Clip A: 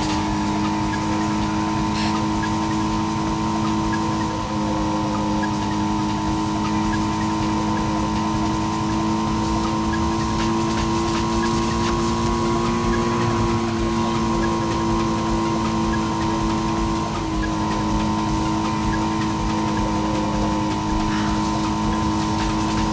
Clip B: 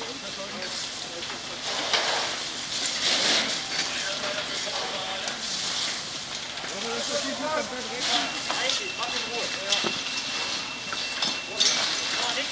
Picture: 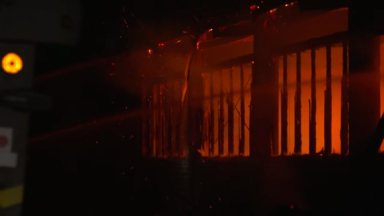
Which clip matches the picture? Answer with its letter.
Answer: B